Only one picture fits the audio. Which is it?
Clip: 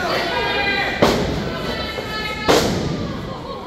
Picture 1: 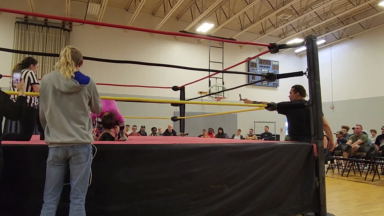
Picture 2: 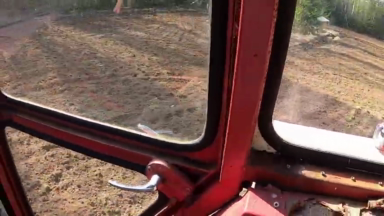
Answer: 1